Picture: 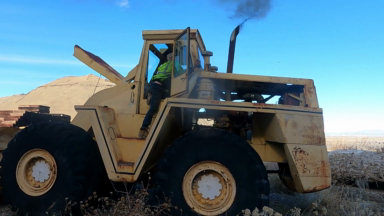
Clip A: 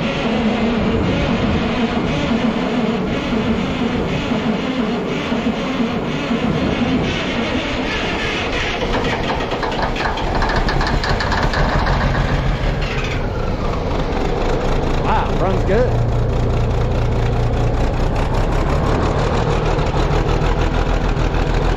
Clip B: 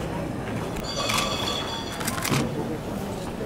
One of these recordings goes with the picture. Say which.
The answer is A